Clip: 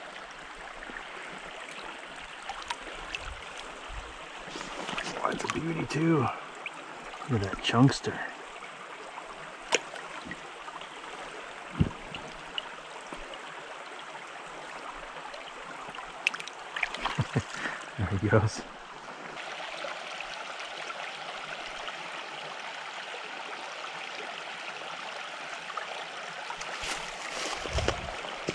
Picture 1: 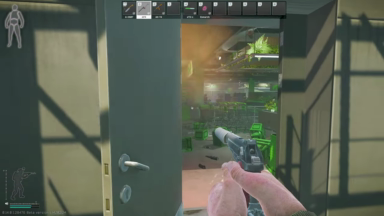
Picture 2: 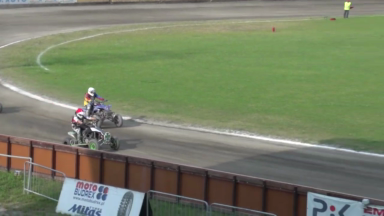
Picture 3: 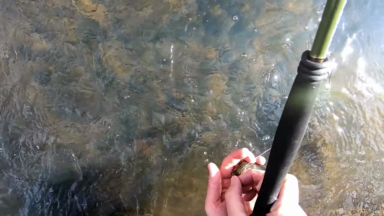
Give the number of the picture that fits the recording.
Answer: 3